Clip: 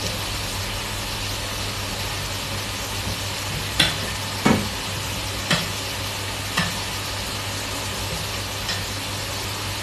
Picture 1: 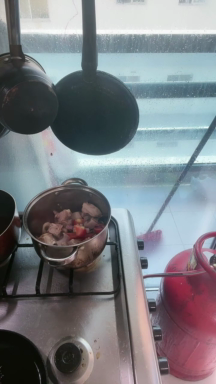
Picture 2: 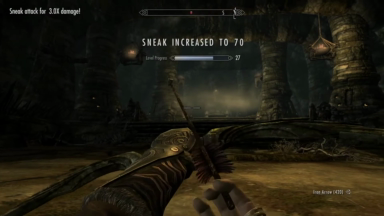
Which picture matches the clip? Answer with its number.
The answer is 1